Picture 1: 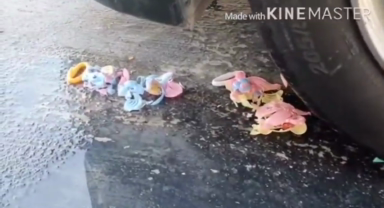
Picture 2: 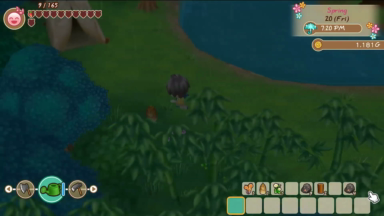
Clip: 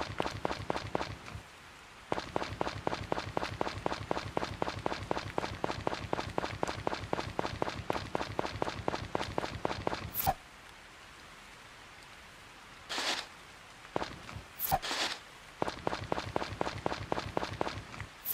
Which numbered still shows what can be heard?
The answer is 2